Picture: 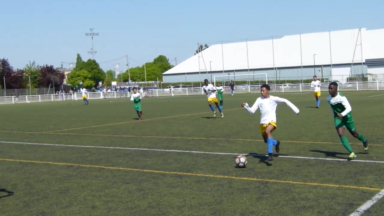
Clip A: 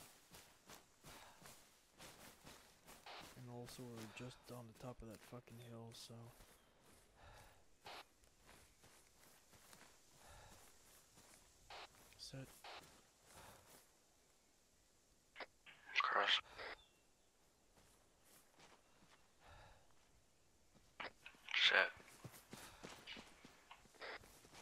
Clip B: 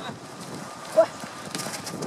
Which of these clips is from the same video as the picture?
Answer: B